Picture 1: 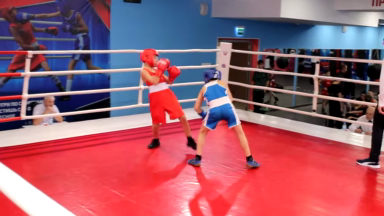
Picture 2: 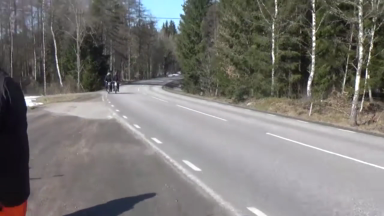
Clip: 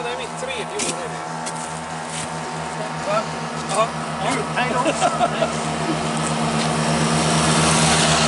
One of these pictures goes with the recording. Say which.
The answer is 2